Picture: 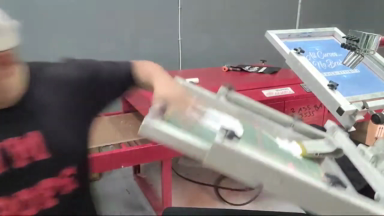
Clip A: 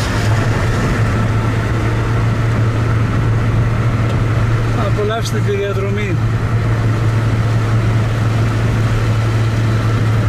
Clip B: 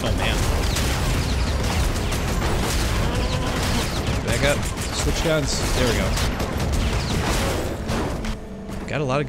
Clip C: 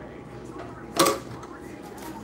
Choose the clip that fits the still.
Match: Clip C